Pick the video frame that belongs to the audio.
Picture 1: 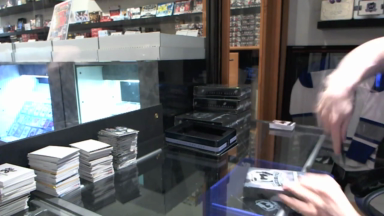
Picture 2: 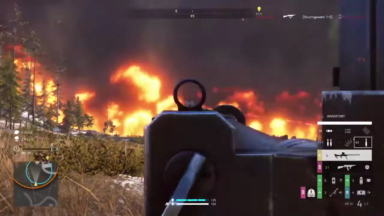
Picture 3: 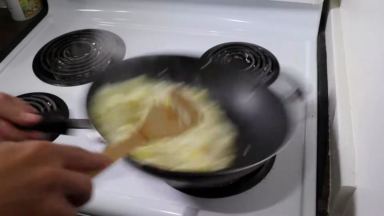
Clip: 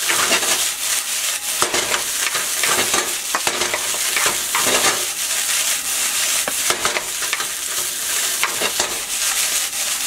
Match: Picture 3